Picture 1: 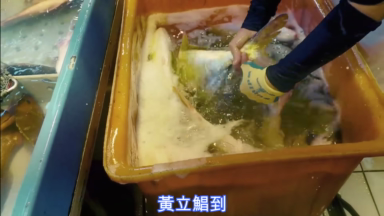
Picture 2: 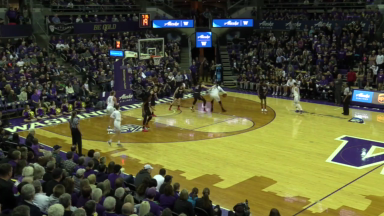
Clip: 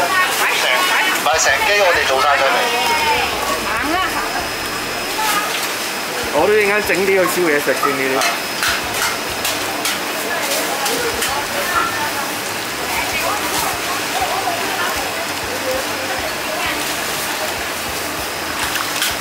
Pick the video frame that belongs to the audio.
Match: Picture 1